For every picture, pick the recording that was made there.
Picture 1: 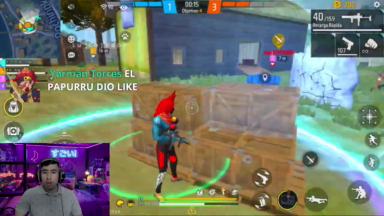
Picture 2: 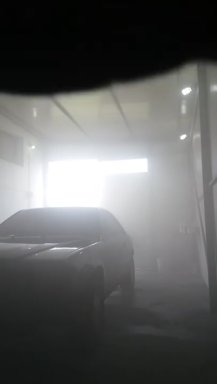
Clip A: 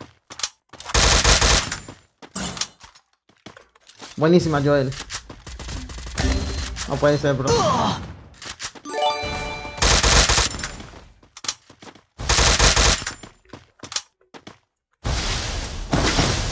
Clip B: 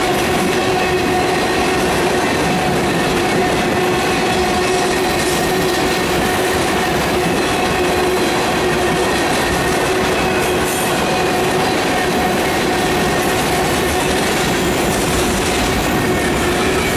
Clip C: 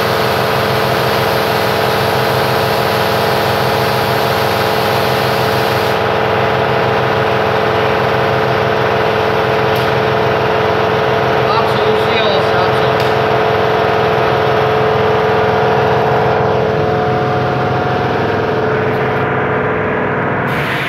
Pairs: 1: A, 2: C